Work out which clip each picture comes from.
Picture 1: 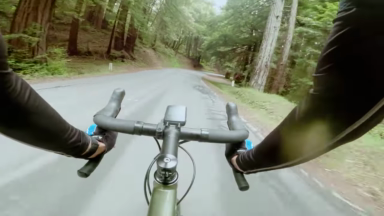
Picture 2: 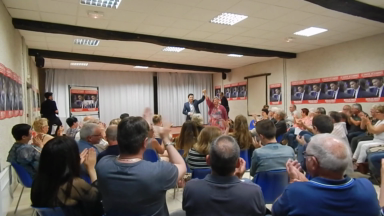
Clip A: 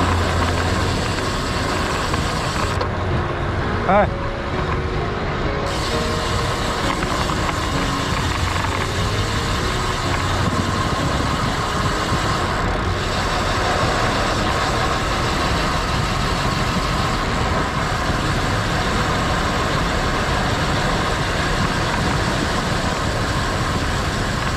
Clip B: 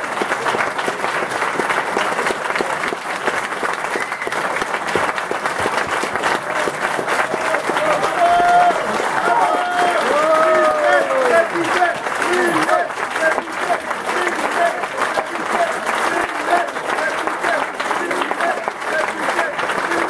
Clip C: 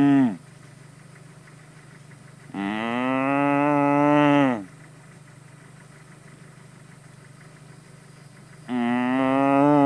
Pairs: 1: A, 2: B